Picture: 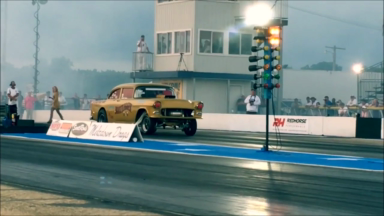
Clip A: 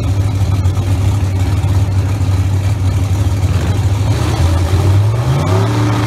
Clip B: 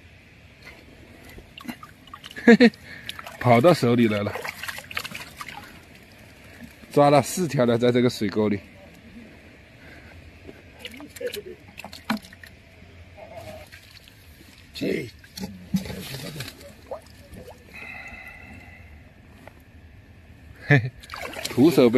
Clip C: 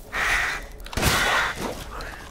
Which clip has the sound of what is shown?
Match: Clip A